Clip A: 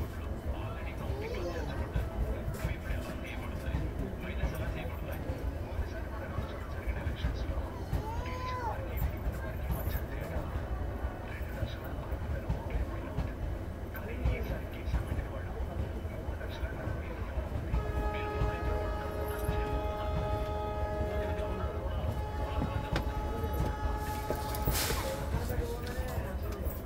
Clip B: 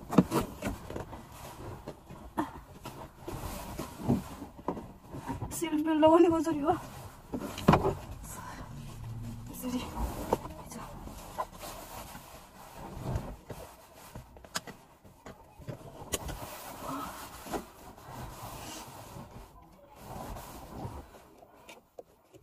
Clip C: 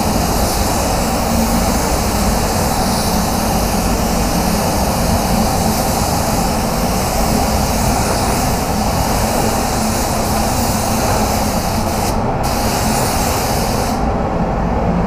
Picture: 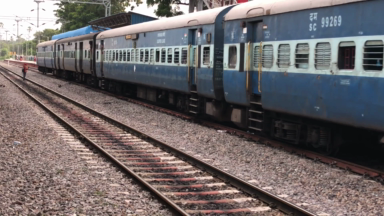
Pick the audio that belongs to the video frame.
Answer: A